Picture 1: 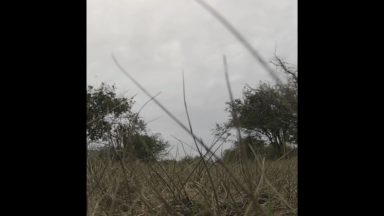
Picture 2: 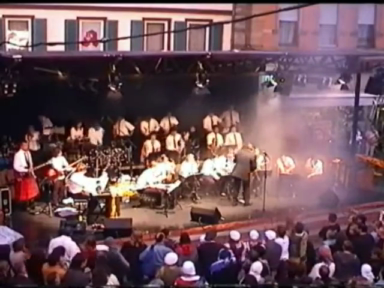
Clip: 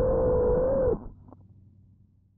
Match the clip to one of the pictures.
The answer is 1